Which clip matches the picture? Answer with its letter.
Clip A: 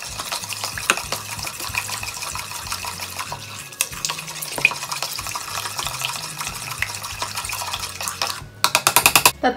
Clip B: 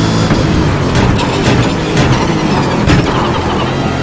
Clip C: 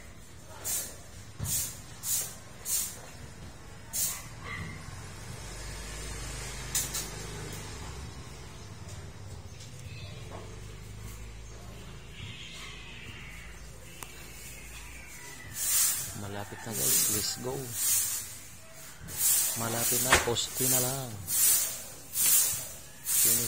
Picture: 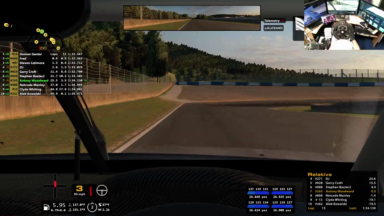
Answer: B